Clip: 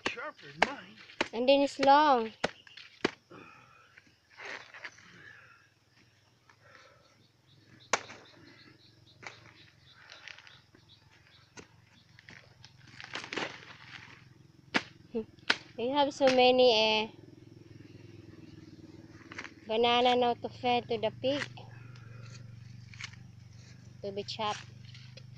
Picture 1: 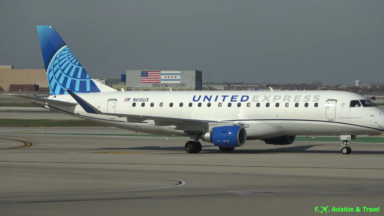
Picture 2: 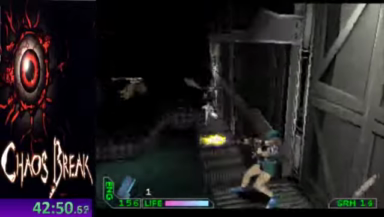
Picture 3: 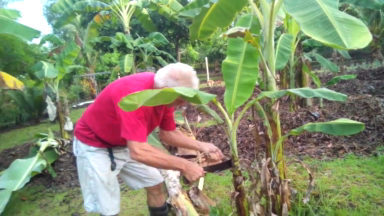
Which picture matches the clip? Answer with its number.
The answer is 3